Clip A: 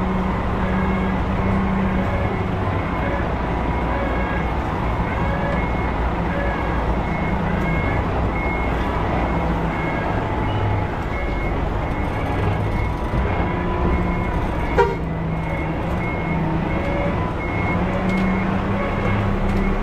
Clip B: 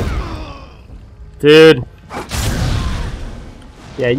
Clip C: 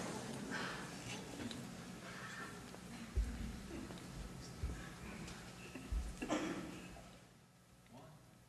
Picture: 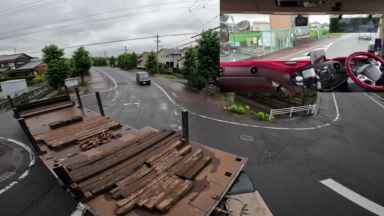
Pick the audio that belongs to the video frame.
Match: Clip A